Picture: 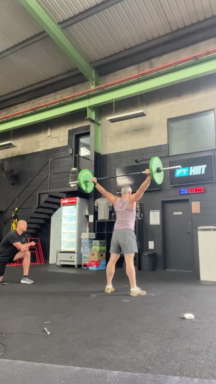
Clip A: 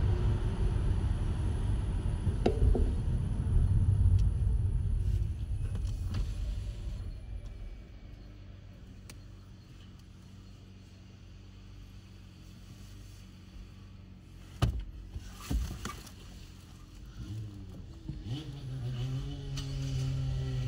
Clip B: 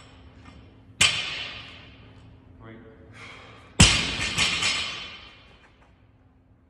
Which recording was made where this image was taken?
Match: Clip B